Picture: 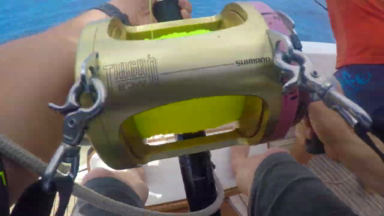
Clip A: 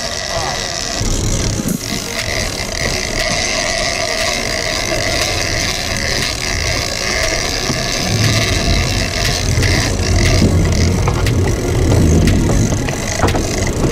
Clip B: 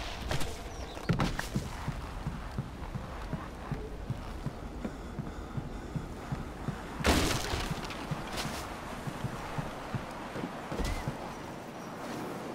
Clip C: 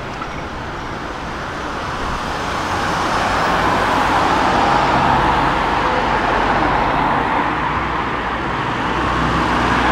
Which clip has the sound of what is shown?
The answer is A